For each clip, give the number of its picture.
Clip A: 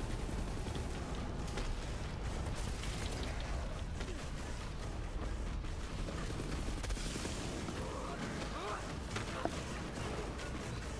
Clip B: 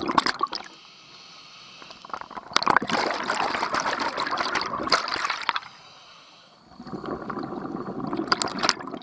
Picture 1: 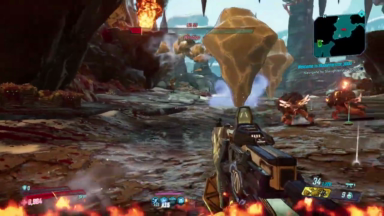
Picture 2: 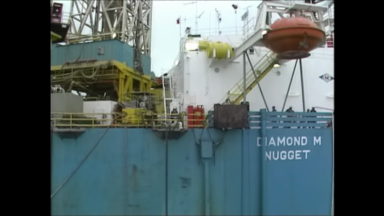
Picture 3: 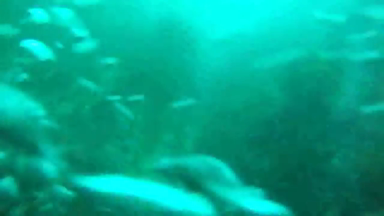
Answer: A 1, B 3